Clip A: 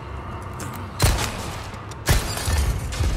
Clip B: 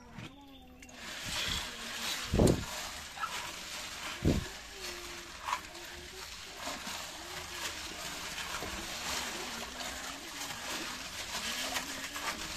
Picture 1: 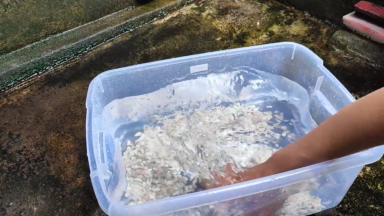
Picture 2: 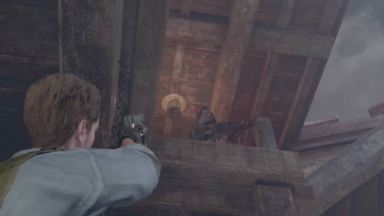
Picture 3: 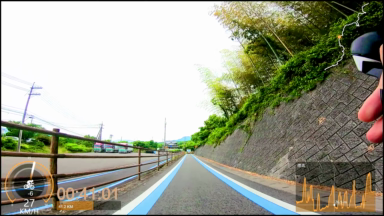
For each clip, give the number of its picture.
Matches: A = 2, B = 1